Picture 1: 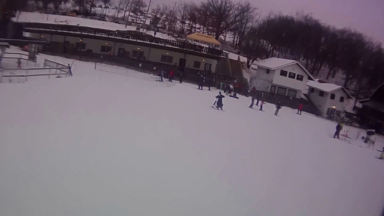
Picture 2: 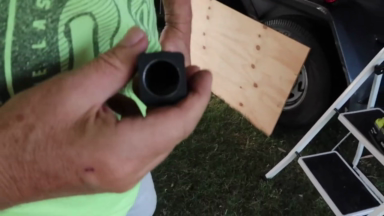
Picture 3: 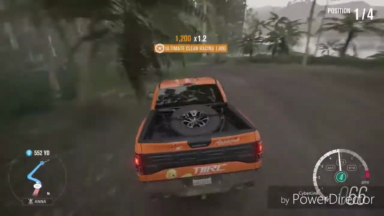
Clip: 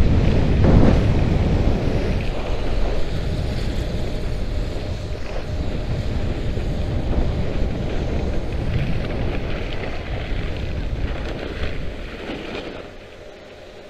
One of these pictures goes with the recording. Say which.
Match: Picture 1